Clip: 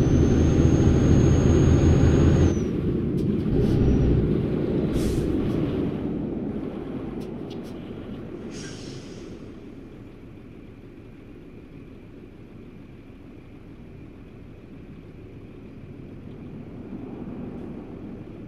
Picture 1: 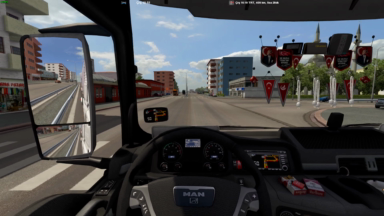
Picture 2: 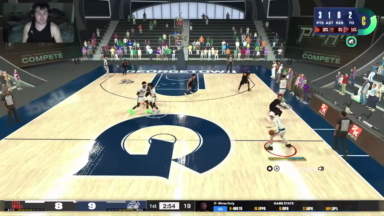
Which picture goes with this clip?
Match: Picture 1